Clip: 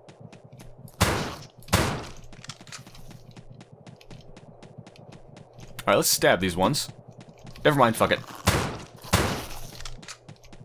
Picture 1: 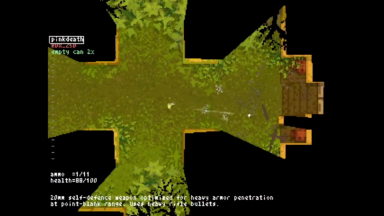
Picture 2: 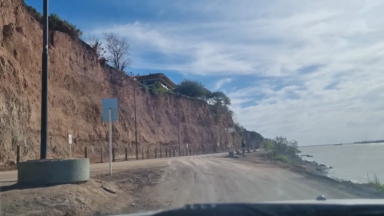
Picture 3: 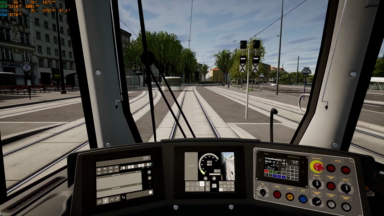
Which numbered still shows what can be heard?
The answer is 1